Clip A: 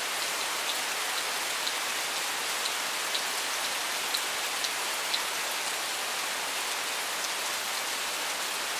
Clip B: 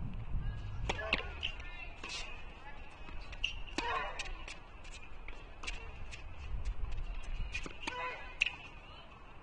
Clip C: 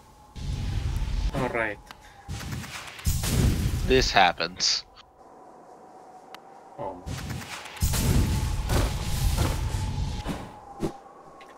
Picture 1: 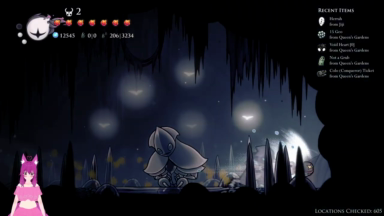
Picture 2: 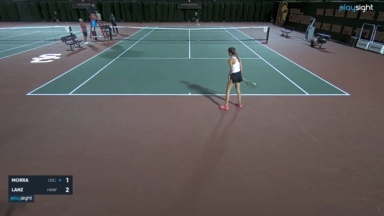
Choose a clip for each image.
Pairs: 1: C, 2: B